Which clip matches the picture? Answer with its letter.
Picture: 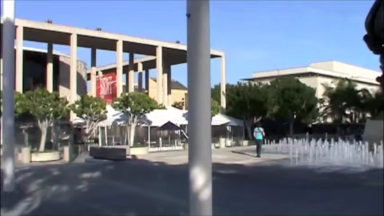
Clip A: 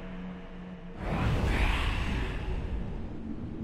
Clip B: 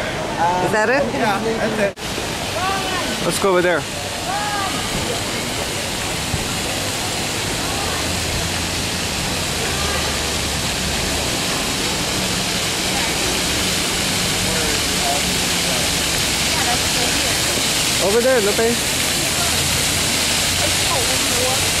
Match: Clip B